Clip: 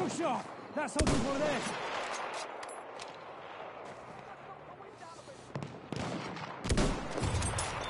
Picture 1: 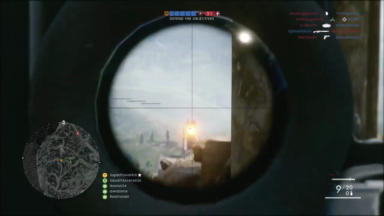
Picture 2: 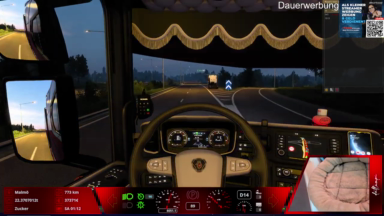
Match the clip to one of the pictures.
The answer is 1